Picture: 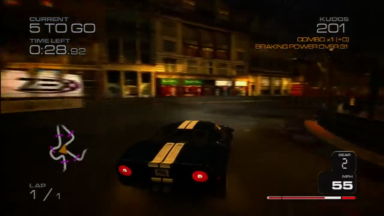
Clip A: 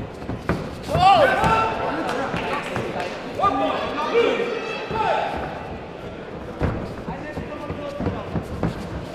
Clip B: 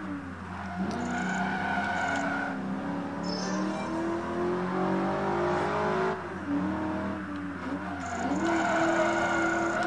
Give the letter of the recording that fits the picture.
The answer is B